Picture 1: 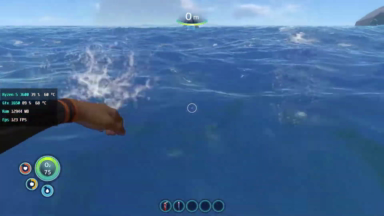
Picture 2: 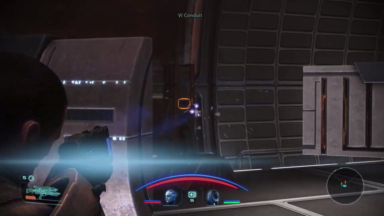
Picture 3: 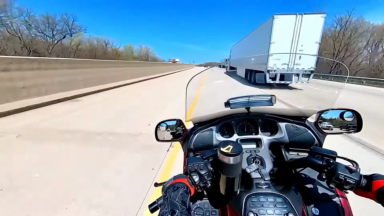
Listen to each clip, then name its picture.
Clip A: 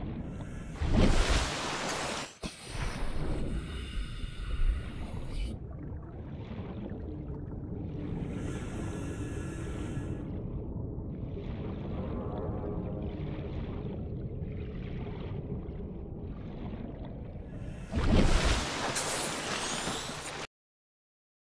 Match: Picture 1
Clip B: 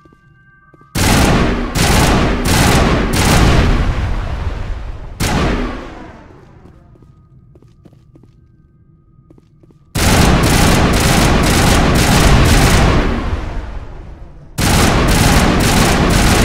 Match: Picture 2